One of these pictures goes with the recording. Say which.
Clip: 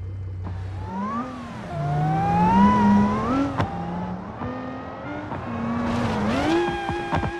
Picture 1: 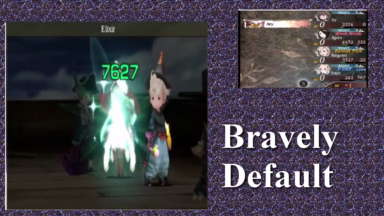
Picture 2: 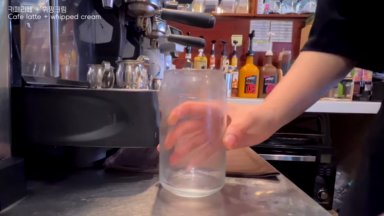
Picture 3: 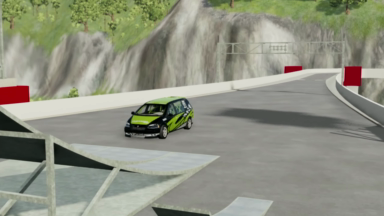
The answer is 3